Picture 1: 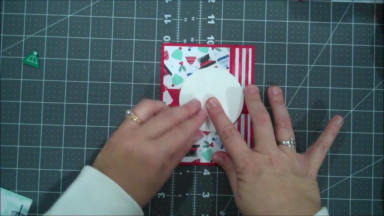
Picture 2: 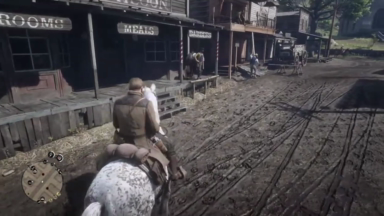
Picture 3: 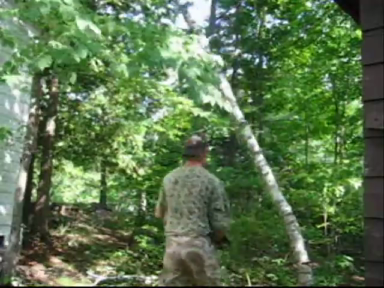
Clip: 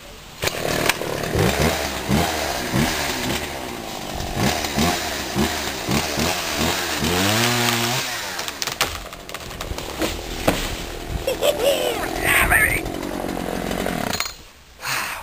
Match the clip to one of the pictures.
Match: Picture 3